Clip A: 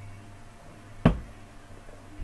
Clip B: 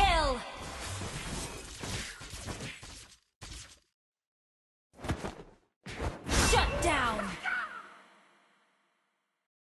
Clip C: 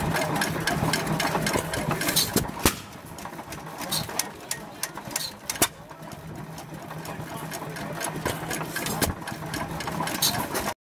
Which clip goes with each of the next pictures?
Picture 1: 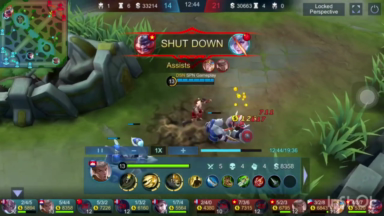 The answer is B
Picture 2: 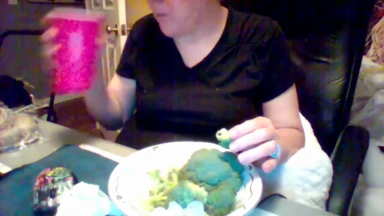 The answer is A